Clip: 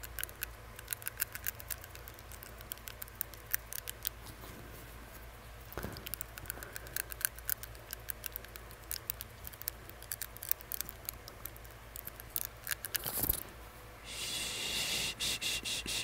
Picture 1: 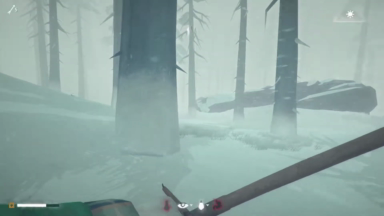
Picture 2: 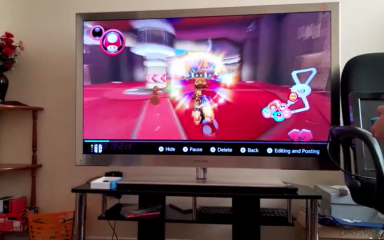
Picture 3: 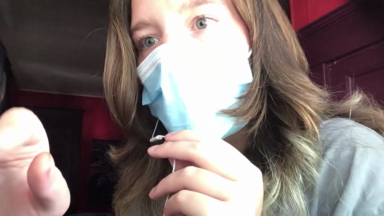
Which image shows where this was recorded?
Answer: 3